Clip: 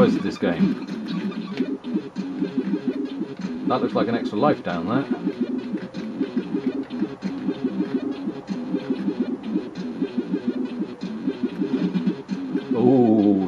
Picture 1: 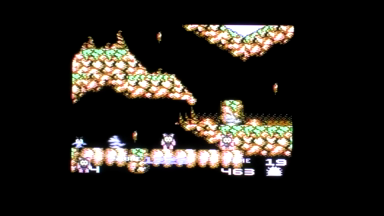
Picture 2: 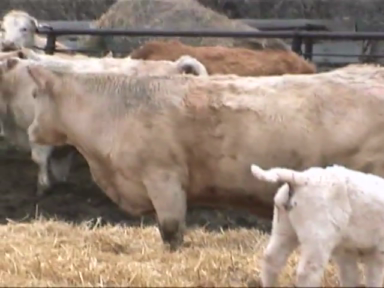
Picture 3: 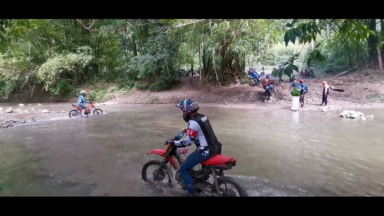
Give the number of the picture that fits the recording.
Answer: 1